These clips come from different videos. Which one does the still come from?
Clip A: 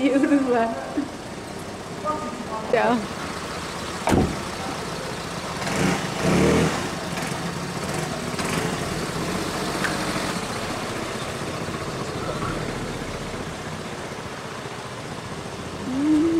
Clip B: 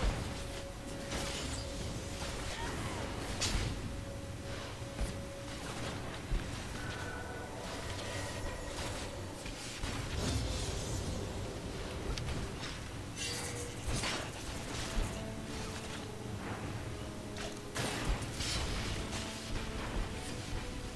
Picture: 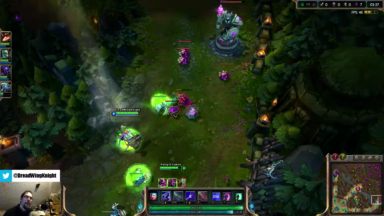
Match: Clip B